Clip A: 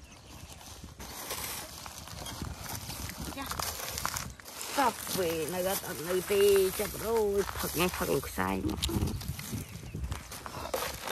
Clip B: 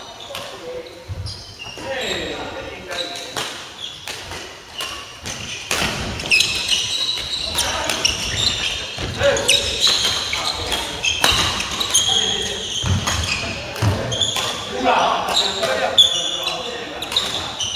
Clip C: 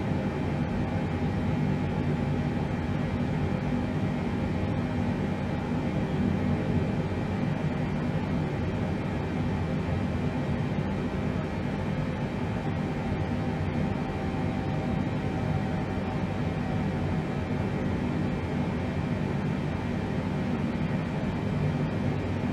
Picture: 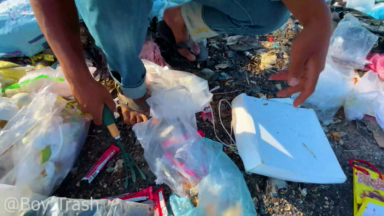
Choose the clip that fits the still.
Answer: A